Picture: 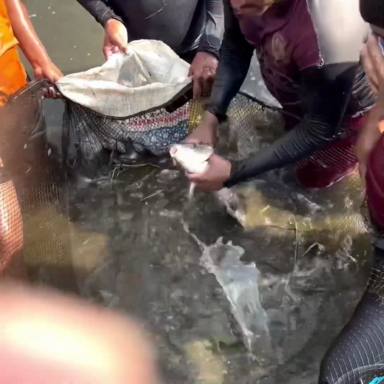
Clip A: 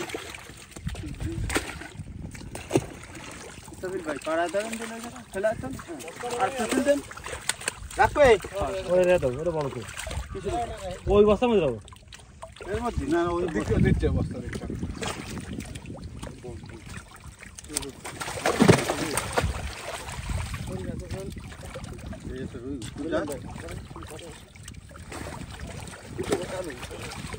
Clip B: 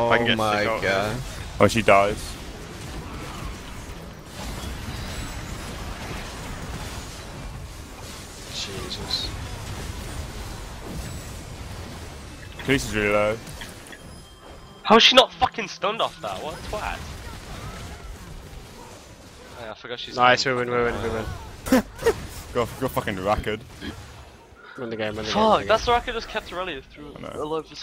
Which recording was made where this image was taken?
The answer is A